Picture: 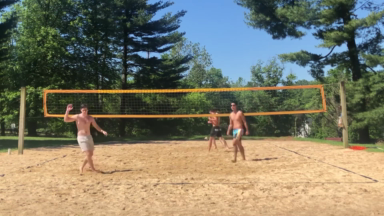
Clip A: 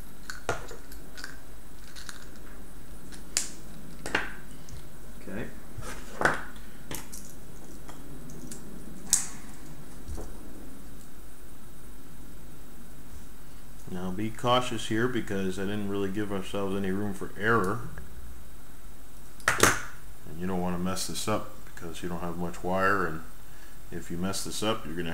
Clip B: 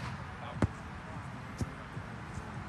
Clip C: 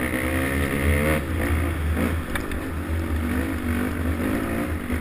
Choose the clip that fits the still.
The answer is B